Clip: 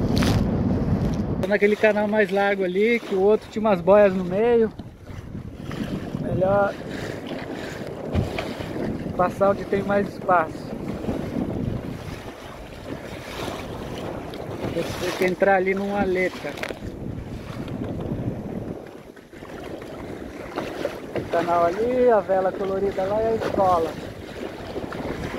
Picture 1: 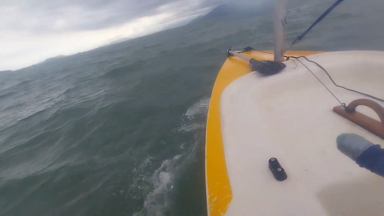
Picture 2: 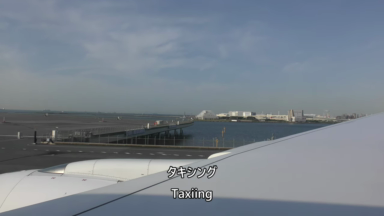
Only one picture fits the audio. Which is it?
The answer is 1